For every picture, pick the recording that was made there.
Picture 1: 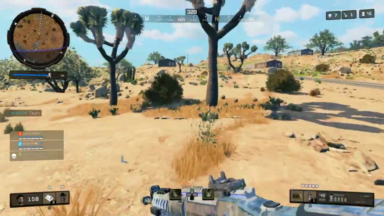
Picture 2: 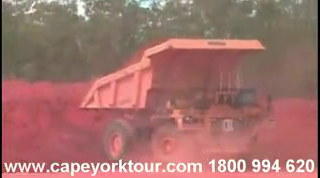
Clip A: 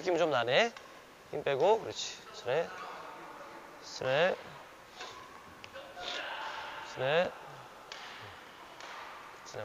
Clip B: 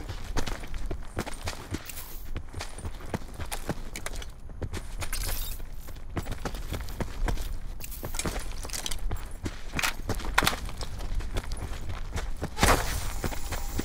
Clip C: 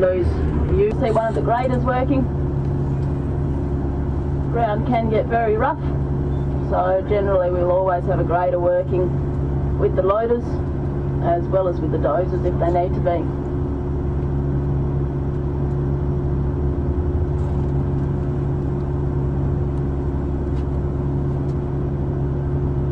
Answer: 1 B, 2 C